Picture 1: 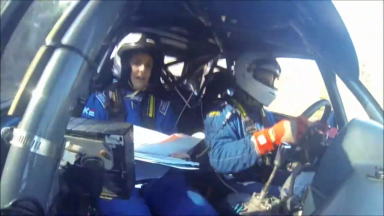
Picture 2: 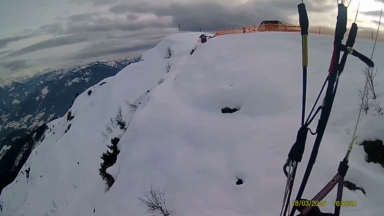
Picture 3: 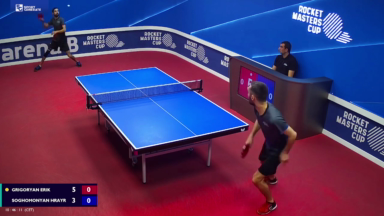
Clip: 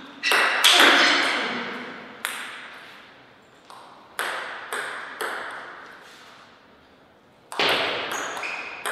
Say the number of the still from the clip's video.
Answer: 3